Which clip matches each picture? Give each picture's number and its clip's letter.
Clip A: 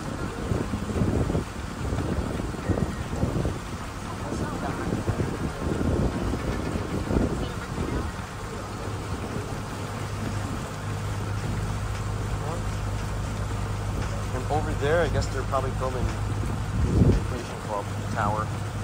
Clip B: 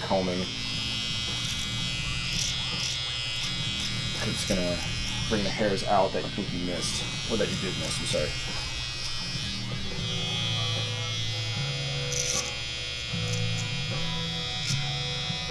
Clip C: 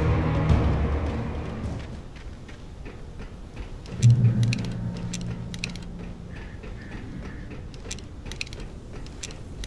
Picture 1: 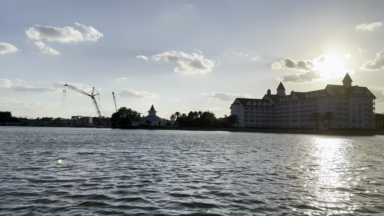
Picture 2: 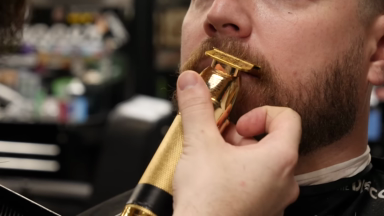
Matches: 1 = A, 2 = B